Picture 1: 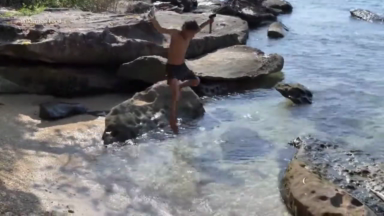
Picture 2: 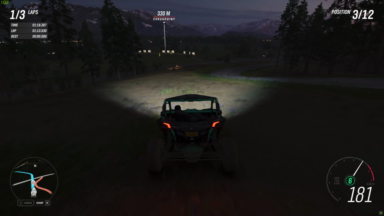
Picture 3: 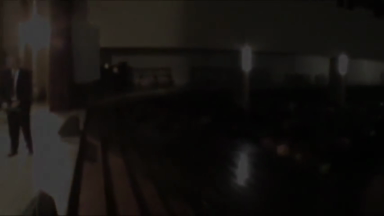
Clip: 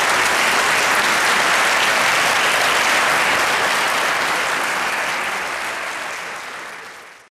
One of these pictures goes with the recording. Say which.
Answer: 3